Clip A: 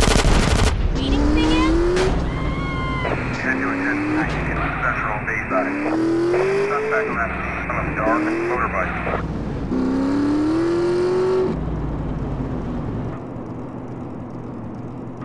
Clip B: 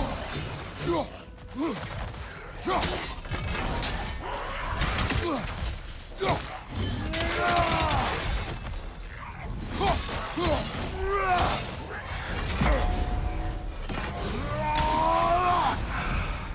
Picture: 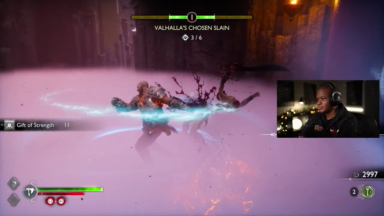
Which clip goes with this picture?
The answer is B